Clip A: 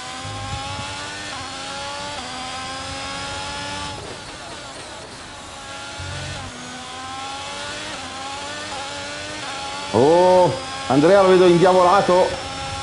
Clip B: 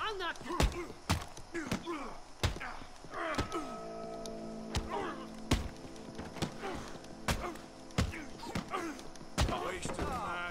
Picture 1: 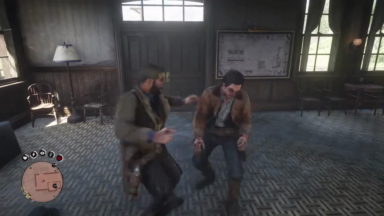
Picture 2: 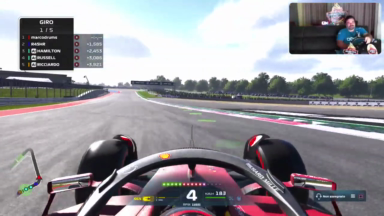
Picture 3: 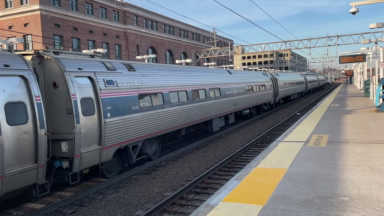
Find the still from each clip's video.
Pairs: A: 2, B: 1